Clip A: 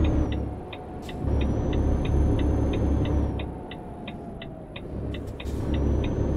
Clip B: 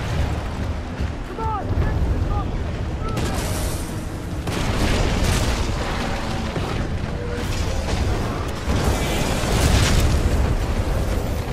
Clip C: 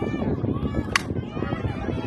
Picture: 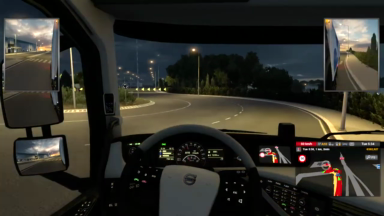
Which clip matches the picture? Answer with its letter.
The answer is A